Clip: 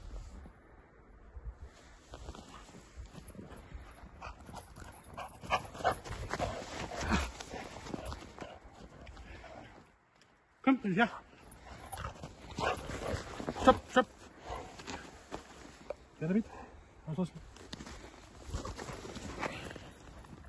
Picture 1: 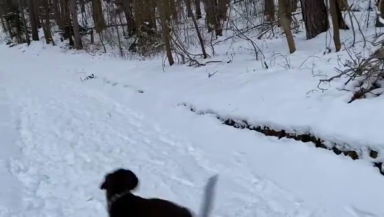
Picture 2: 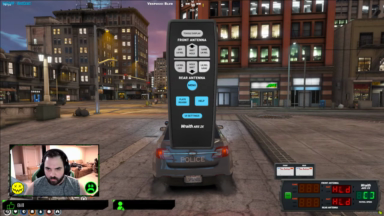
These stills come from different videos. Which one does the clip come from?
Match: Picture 1